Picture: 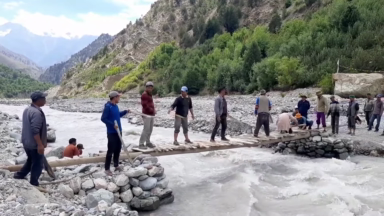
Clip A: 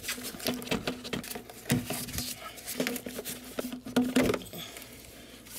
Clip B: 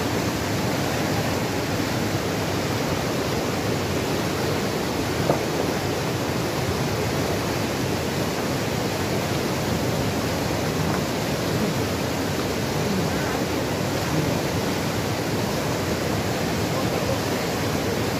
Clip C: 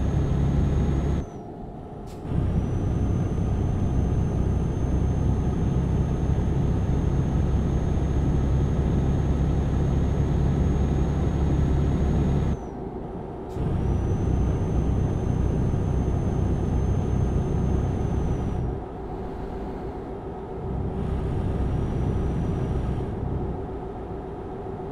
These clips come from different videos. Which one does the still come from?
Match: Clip B